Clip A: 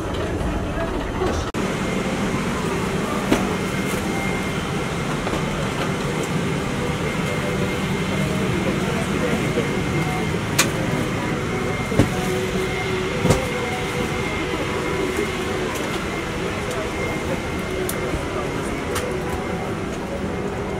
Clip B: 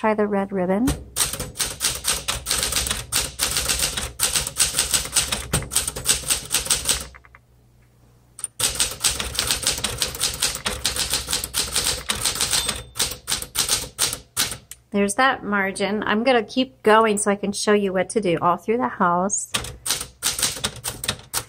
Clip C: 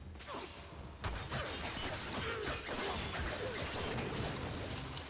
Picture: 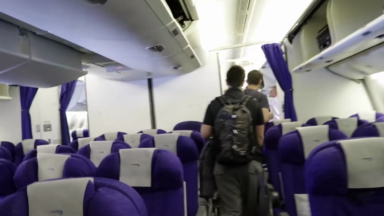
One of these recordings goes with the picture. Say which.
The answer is A